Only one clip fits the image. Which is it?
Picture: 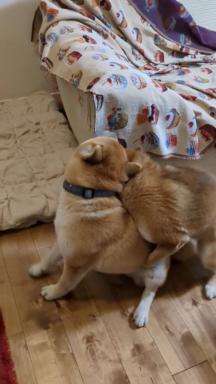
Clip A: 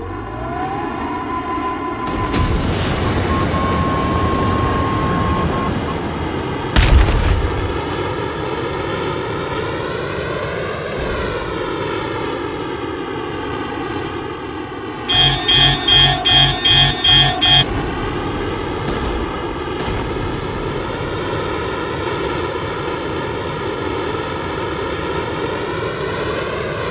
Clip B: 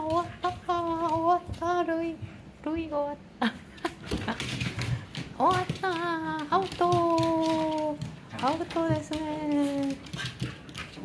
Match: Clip B